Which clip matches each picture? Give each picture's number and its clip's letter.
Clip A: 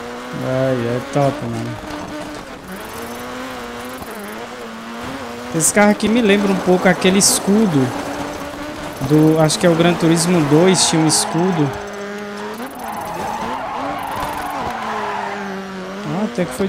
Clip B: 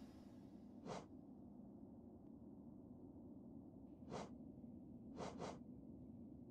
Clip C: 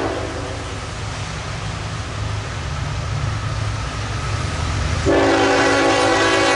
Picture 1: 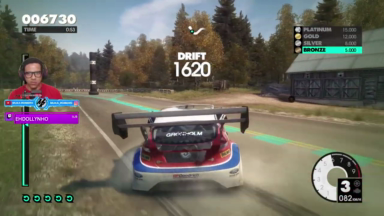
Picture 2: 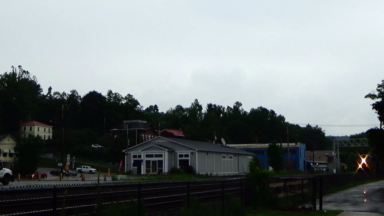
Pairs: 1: A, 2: C